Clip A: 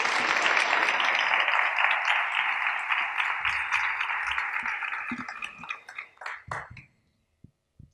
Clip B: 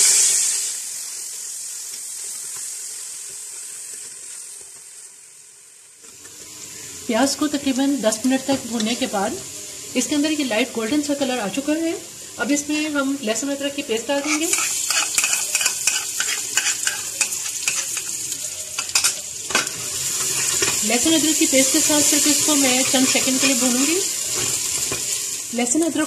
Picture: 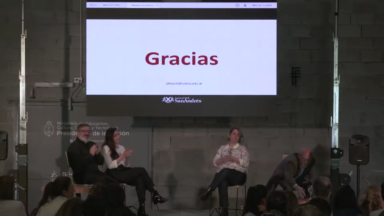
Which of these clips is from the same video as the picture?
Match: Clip A